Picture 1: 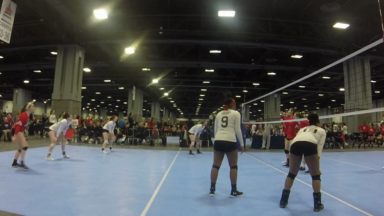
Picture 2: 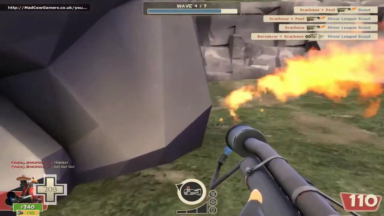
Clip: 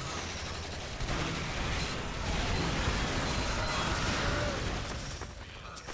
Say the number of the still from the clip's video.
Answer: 2